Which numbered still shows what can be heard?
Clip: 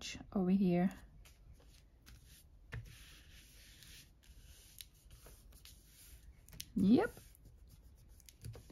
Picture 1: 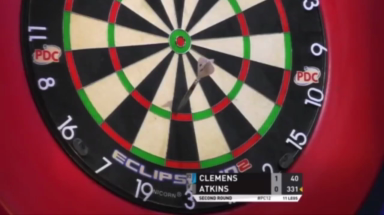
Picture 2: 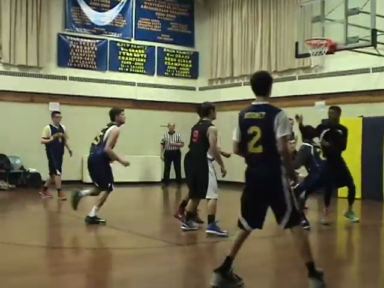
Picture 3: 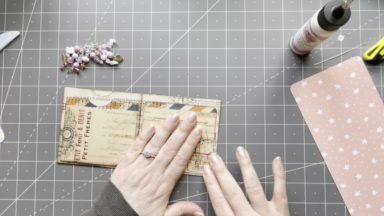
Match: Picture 3